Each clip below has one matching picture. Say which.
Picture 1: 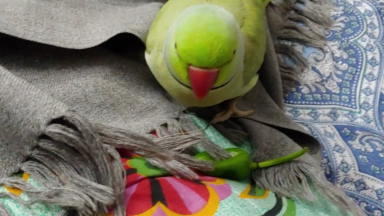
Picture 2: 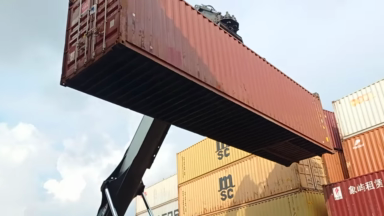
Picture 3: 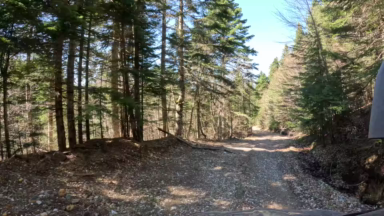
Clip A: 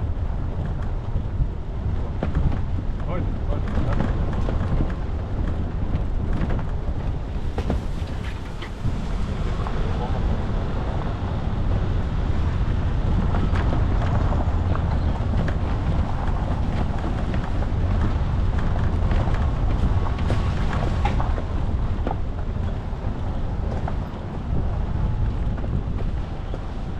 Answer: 3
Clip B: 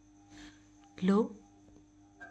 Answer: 1